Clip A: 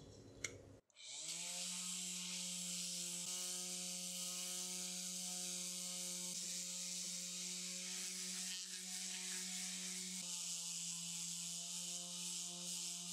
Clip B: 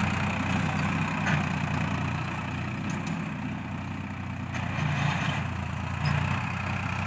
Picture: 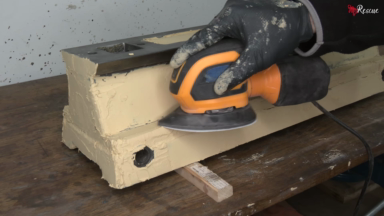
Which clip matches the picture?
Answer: A